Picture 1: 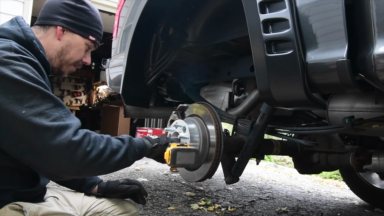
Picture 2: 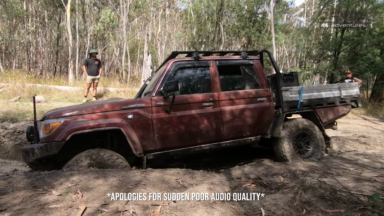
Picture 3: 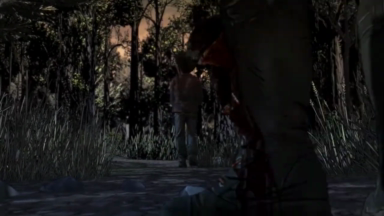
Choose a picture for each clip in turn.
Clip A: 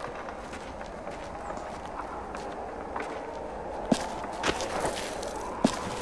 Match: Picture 3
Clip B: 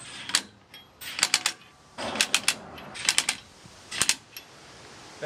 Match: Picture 1